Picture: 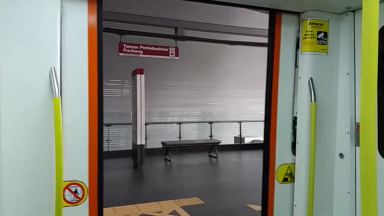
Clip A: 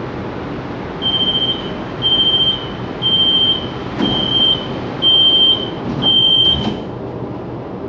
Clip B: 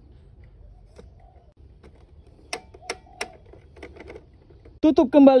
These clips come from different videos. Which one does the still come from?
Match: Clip A